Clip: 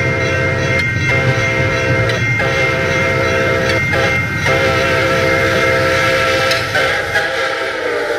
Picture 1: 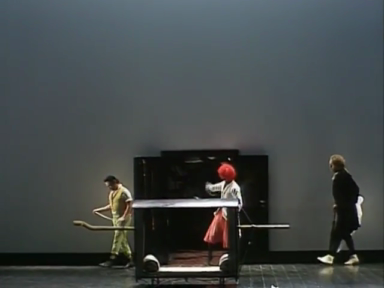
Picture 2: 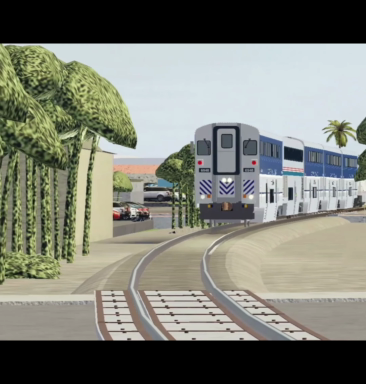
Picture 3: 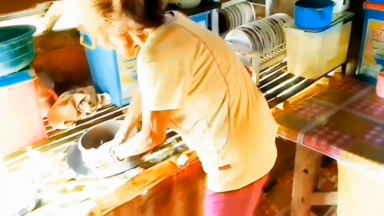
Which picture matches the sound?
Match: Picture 2